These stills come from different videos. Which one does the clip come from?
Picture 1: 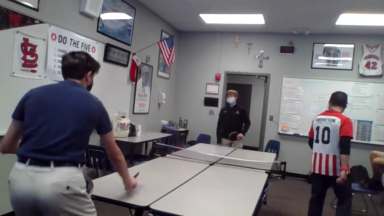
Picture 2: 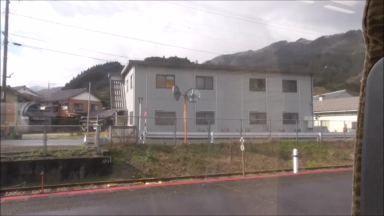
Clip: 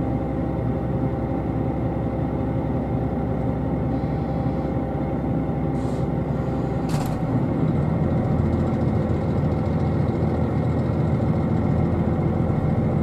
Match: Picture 2